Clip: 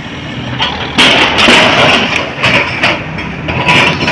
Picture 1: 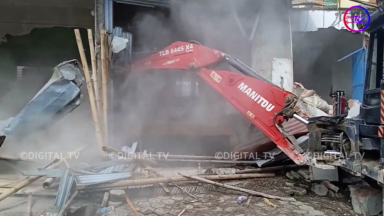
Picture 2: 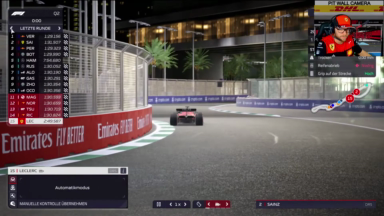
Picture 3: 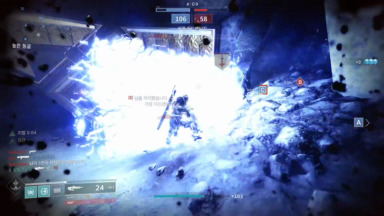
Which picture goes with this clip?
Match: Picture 1